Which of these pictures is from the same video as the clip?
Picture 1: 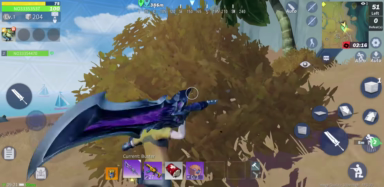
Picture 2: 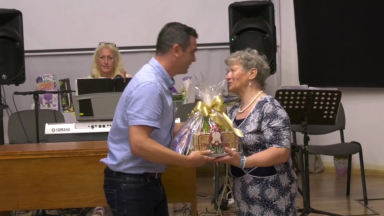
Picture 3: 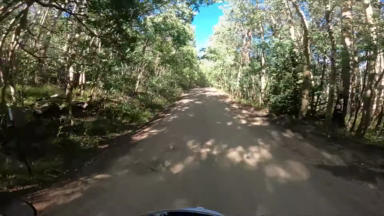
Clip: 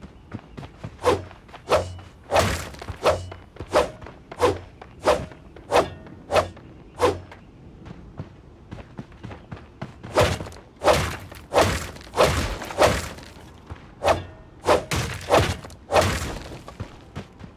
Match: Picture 1